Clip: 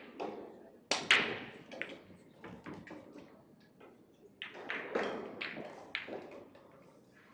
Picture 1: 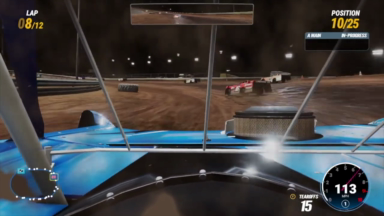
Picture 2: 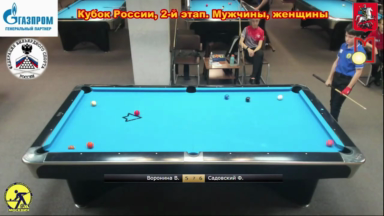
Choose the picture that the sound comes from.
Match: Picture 2